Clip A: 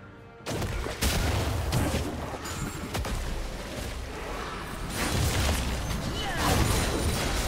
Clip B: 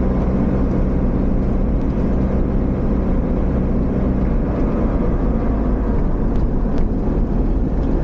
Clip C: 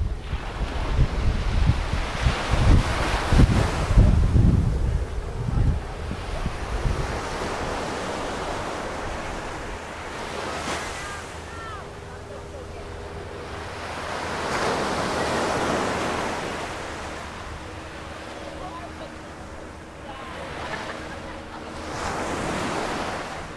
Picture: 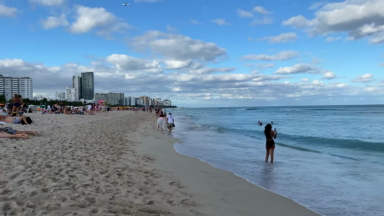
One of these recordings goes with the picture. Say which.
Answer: C